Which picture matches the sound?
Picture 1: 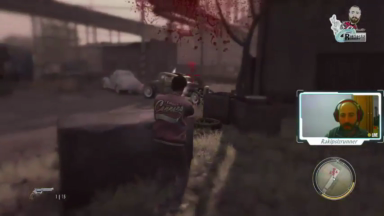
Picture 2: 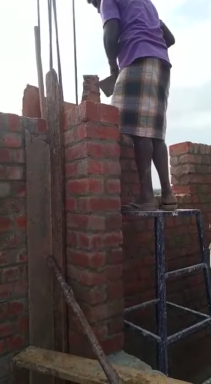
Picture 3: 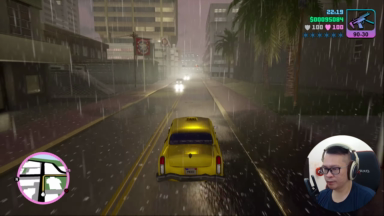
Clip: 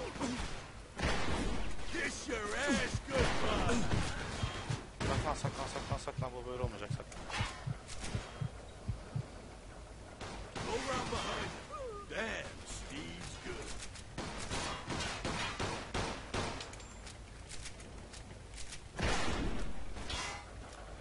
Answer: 1